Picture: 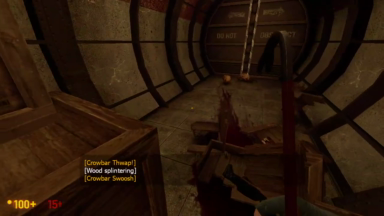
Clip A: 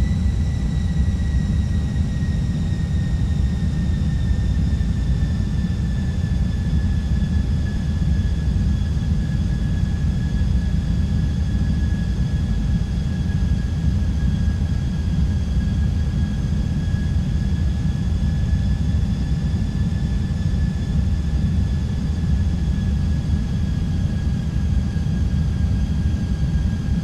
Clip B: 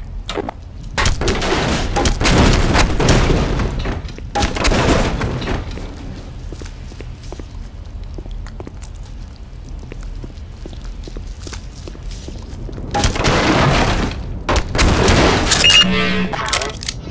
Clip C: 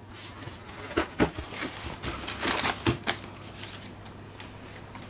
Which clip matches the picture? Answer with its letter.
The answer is B